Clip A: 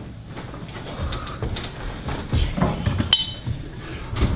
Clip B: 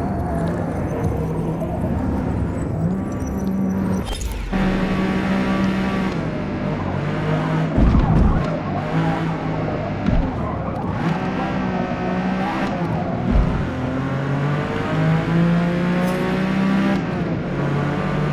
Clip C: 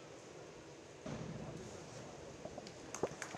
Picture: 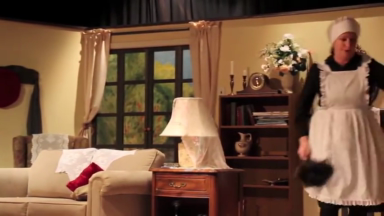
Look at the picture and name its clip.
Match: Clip A